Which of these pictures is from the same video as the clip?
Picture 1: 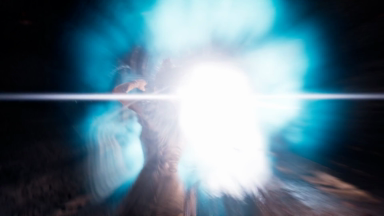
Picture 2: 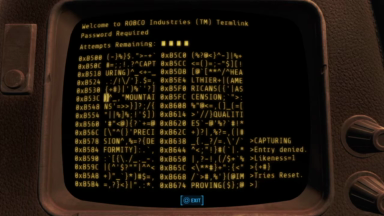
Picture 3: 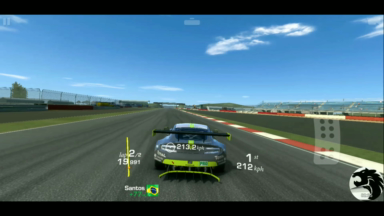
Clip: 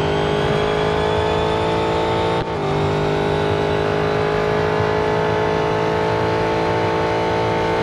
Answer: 3